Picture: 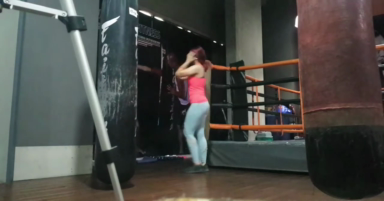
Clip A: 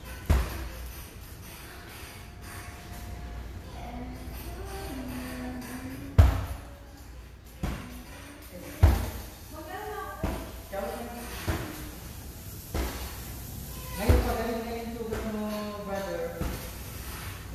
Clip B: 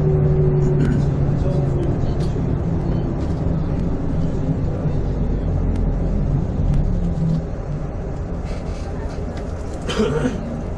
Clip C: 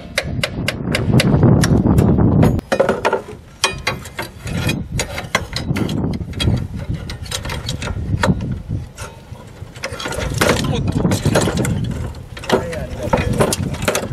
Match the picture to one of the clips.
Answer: A